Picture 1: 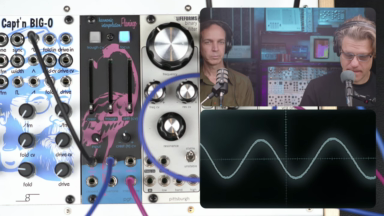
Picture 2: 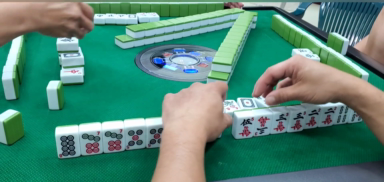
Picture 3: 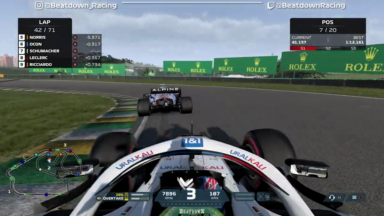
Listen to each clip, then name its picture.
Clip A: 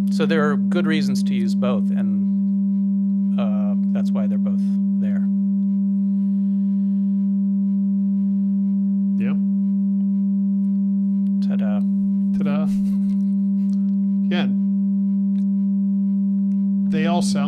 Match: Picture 1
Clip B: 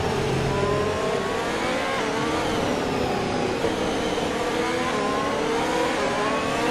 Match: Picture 3